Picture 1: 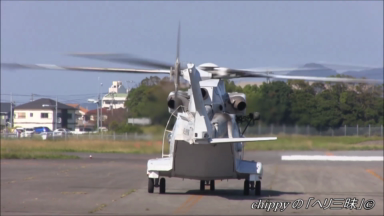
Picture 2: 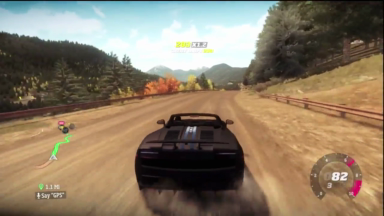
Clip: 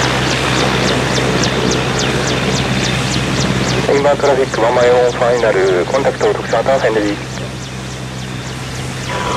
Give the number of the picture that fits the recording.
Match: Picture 1